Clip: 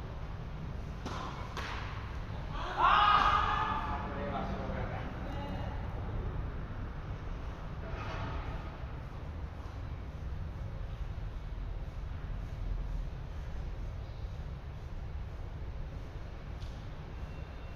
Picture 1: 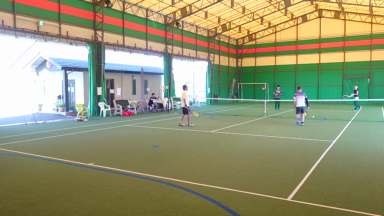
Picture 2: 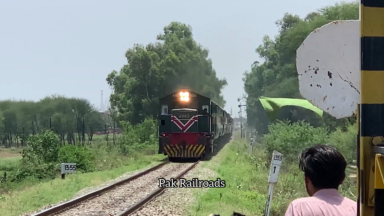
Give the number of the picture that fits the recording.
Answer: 1